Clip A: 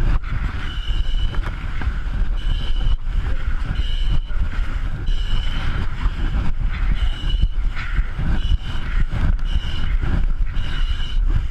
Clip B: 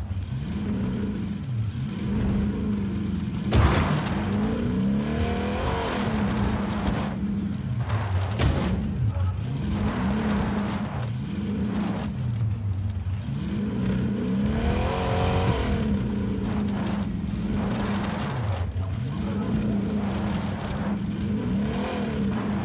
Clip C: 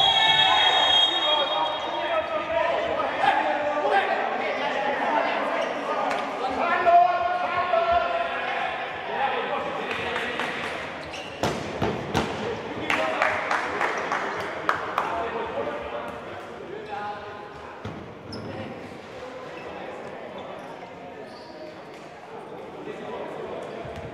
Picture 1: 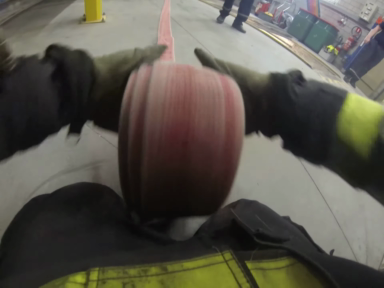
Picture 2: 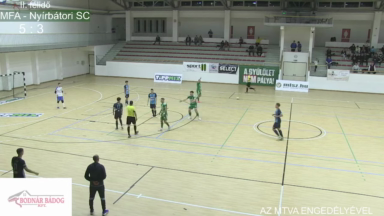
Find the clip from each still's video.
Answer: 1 A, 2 C